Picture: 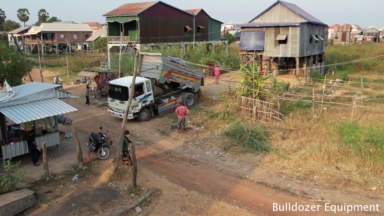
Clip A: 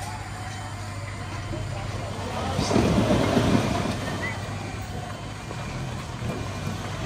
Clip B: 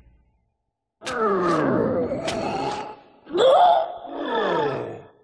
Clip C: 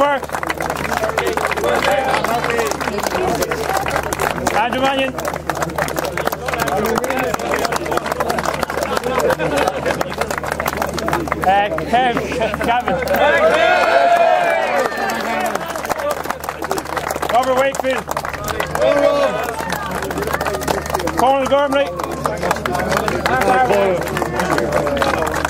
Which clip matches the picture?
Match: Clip A